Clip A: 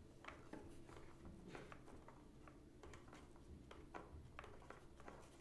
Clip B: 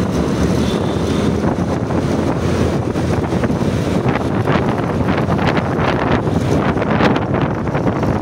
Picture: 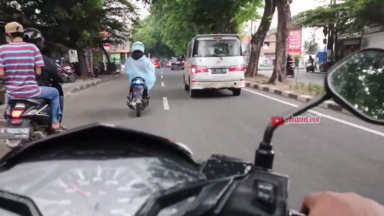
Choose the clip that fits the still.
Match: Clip B